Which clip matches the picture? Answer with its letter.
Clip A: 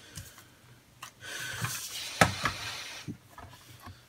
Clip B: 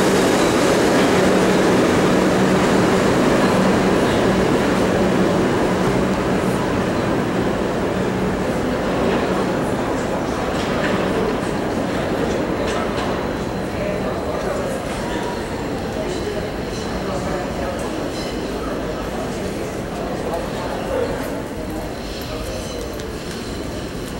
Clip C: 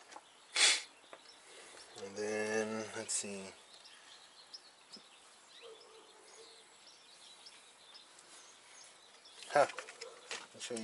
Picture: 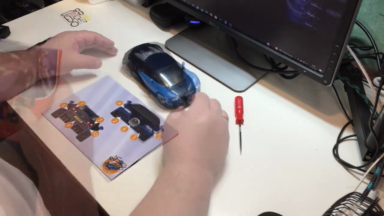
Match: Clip A